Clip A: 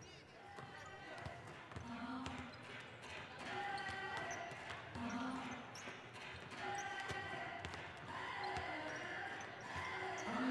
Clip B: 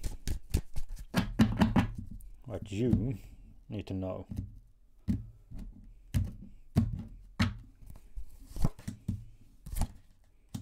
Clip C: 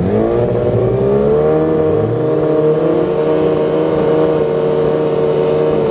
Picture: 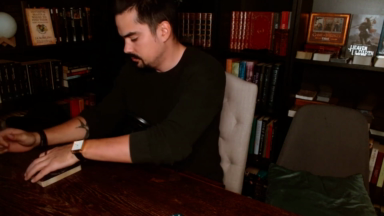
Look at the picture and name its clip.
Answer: B